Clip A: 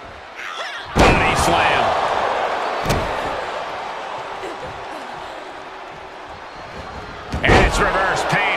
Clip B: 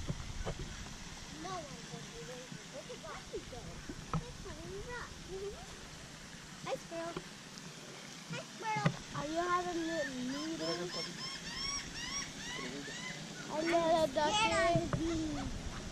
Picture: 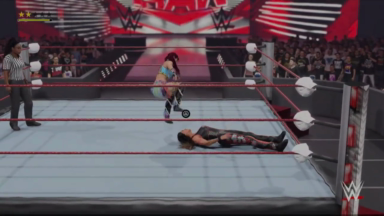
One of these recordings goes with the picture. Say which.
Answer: A